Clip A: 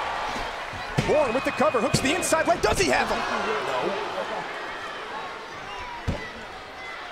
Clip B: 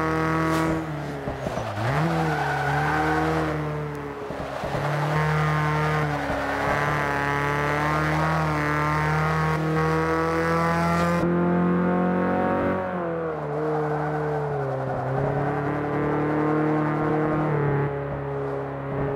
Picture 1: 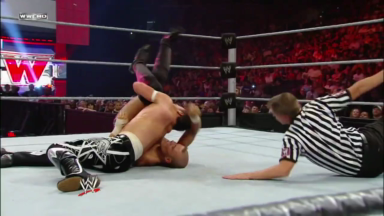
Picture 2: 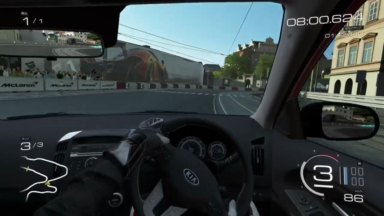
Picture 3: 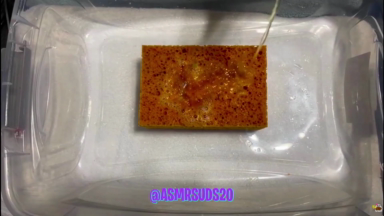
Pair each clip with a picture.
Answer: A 1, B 2